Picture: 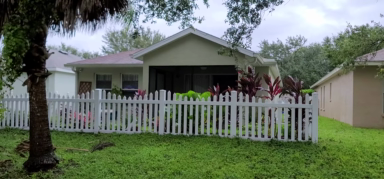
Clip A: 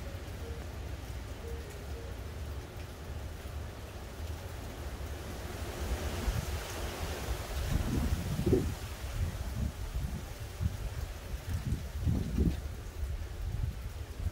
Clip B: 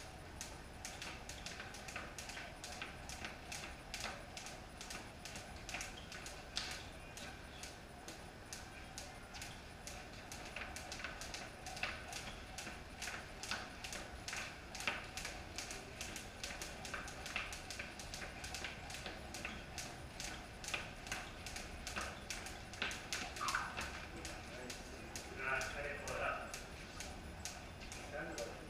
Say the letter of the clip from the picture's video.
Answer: A